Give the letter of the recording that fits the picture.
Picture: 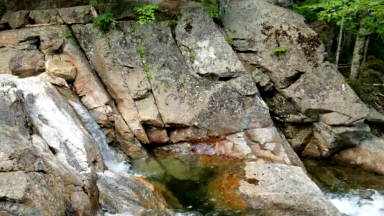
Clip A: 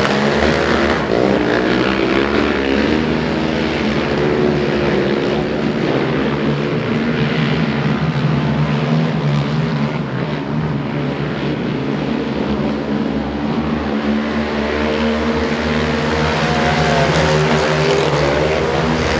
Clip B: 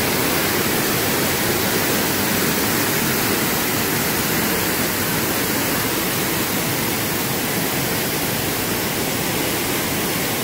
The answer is B